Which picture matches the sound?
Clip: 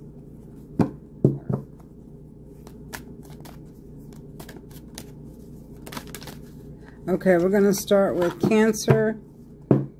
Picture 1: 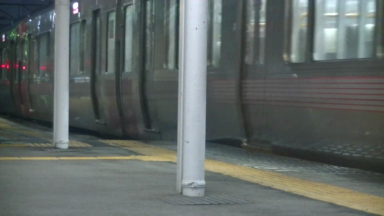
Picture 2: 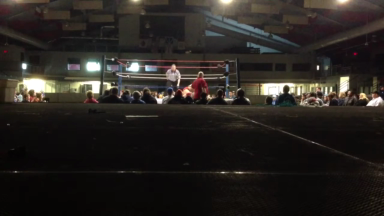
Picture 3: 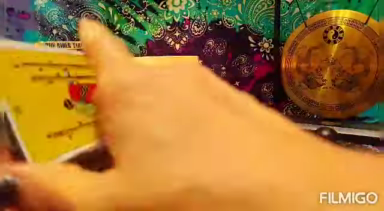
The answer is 3